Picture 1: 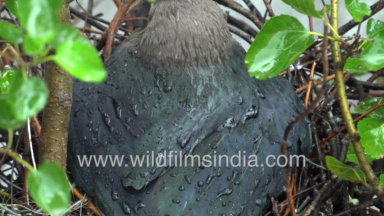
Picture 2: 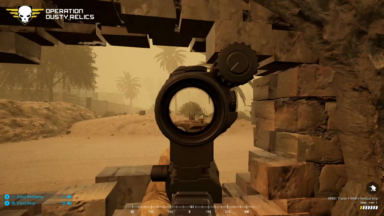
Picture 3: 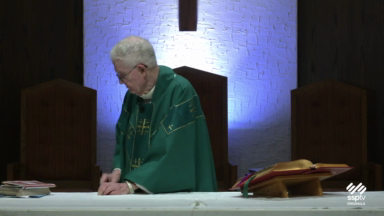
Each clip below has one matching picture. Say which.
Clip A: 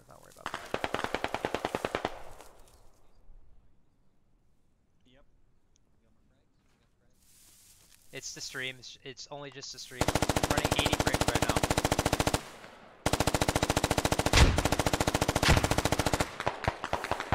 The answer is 2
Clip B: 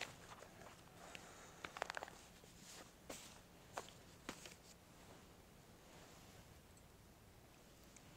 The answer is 3